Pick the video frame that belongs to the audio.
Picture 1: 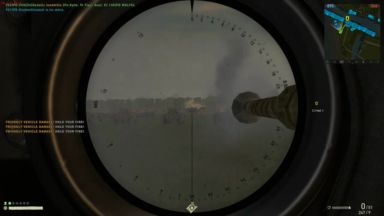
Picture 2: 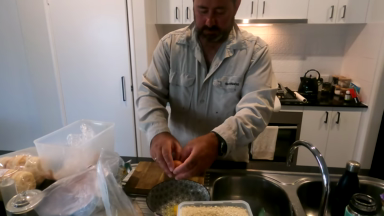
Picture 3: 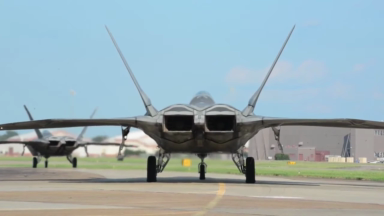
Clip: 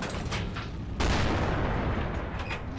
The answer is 1